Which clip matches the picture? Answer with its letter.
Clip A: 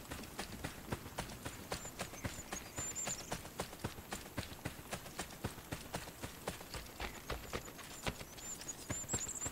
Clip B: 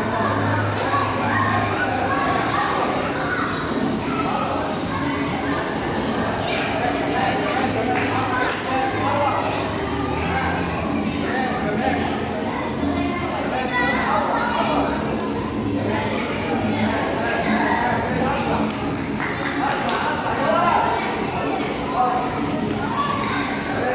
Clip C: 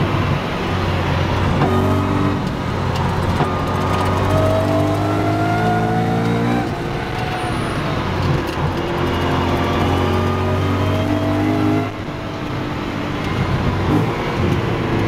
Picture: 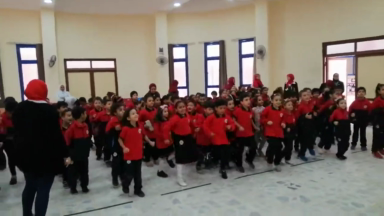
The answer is B